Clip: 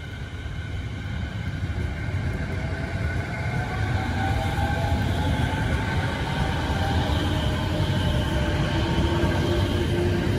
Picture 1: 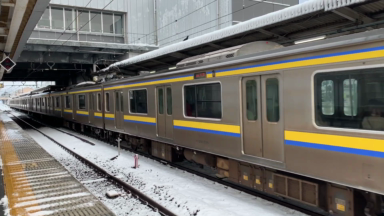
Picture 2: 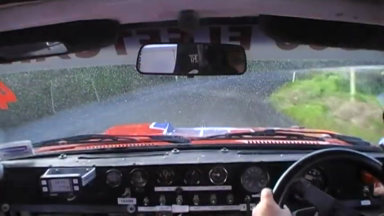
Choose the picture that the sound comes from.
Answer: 1